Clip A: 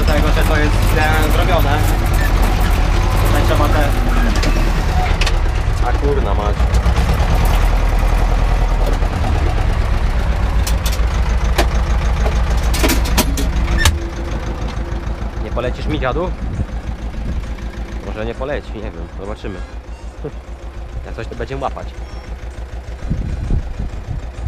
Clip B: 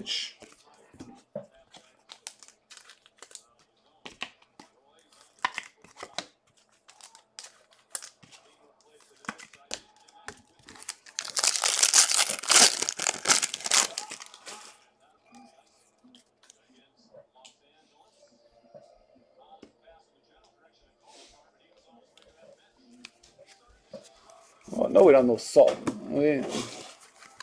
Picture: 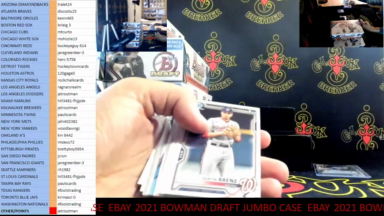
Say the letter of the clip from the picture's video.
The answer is B